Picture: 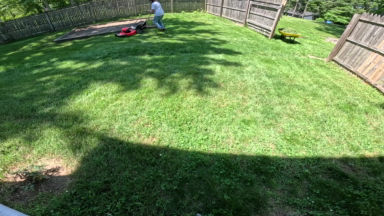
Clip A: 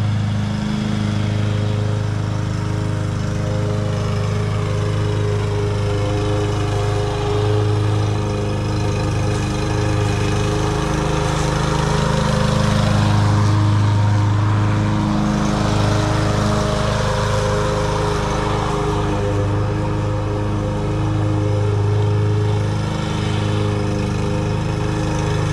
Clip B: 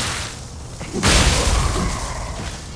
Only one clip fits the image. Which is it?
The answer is A